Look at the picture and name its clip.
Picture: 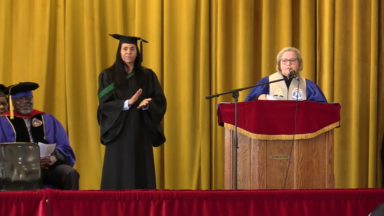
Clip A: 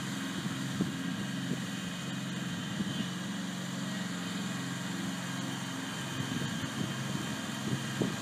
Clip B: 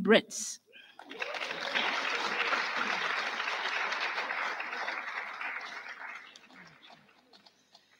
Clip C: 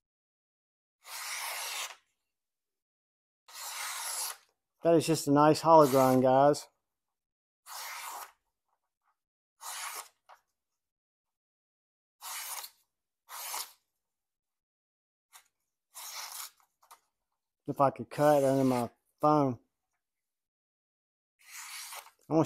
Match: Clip B